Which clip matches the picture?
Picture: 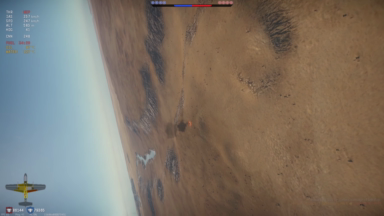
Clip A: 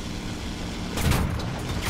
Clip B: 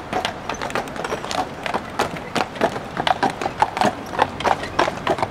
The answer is A